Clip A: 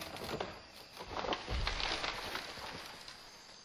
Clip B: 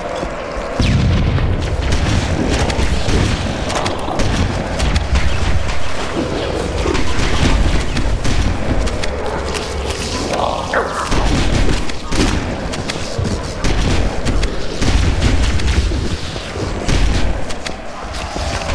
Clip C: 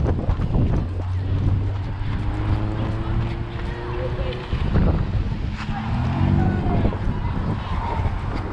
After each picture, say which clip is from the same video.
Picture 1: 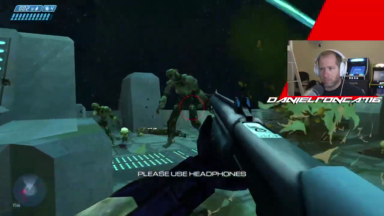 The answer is B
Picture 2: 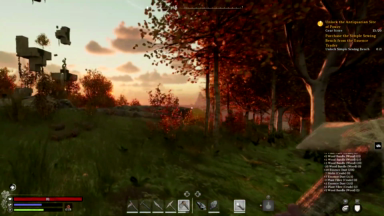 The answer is A